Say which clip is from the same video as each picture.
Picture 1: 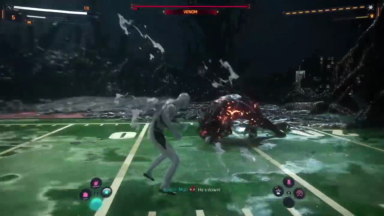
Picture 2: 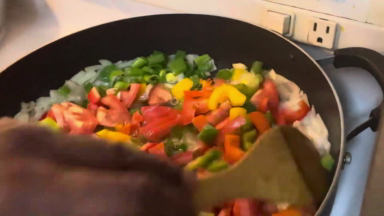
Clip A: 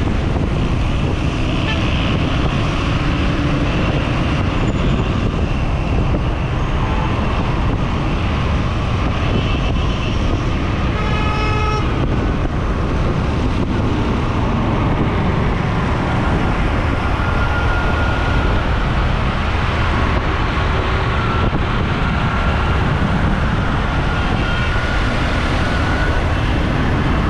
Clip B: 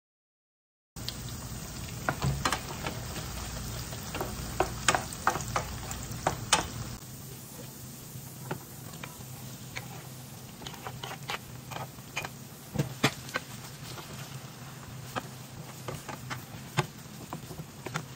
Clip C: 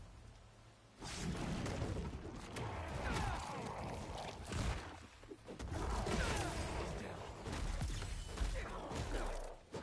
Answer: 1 C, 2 B